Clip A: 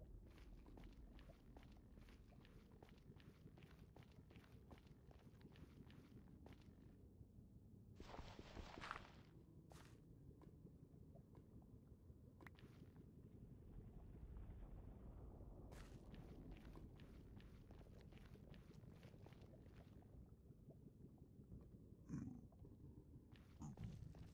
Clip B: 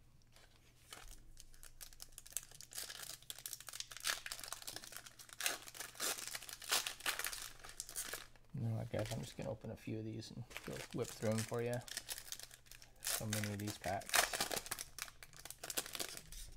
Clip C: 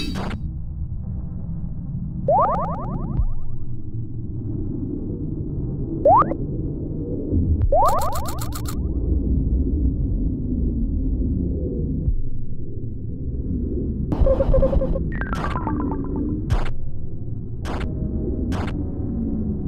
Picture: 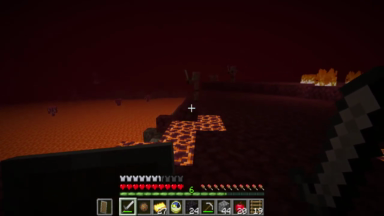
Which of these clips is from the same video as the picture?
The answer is A